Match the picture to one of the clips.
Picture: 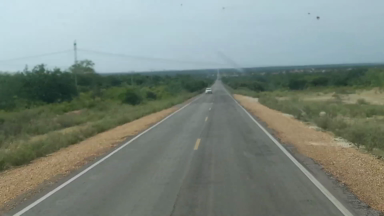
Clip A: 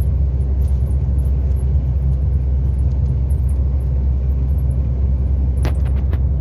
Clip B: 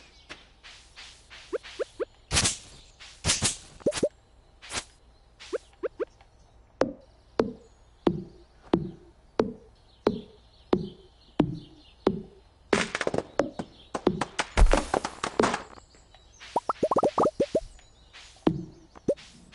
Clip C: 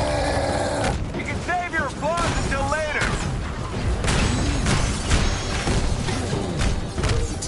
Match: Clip A